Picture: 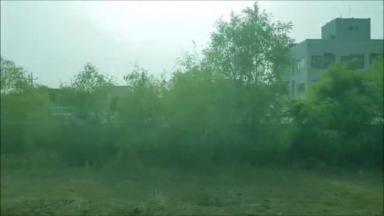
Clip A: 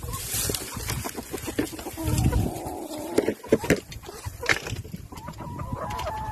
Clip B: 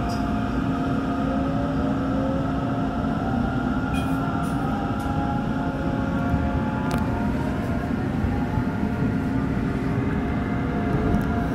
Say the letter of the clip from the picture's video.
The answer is B